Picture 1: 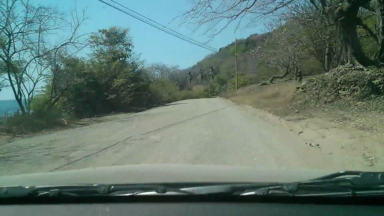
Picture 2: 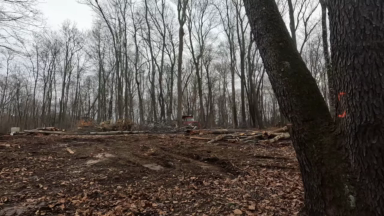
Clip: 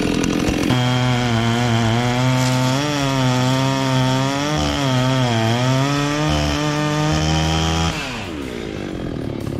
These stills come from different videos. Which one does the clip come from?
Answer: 2